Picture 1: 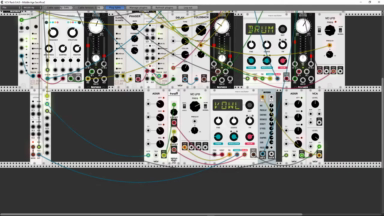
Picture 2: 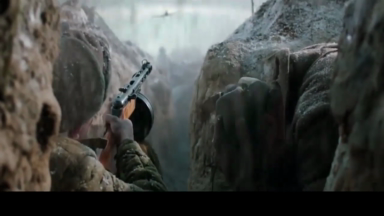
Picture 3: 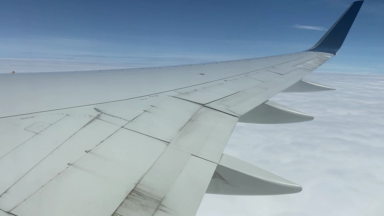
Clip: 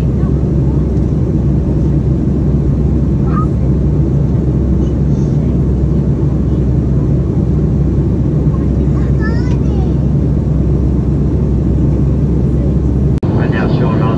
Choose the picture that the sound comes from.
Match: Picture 3